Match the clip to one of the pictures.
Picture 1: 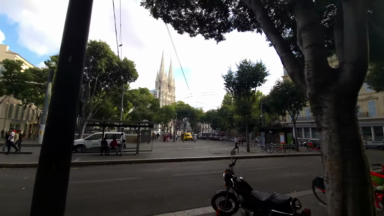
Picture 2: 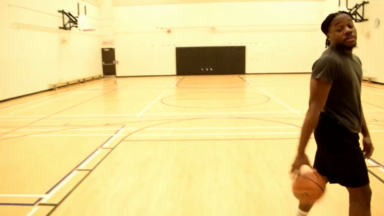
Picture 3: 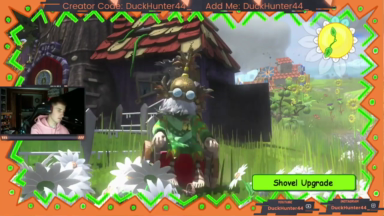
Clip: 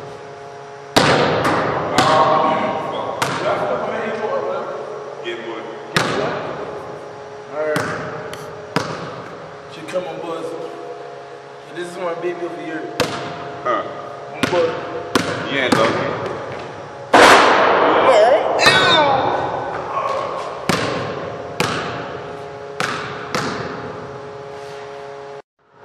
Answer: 2